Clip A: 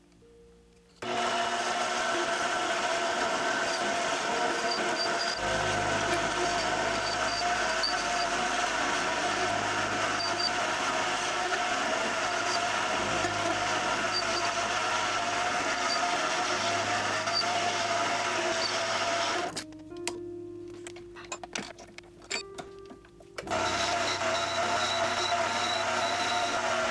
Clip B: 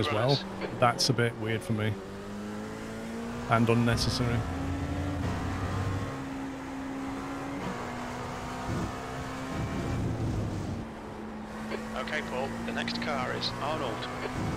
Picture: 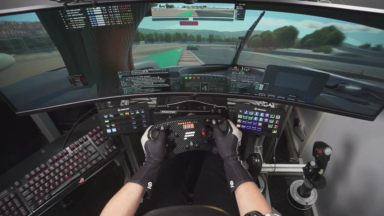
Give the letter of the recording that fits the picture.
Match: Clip B